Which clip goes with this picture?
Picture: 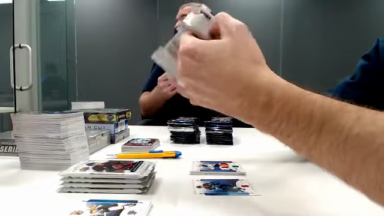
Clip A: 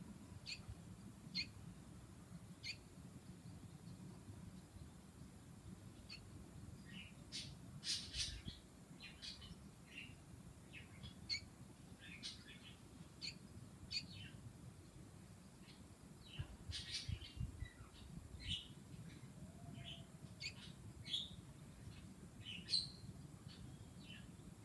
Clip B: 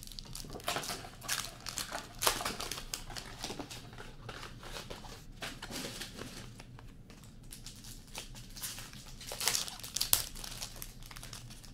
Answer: B